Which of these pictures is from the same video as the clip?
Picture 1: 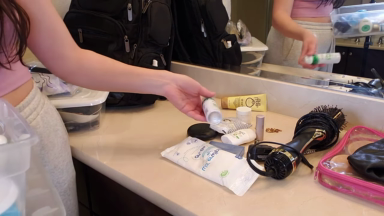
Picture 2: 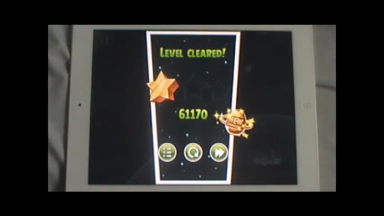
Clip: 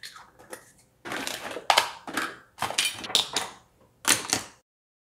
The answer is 1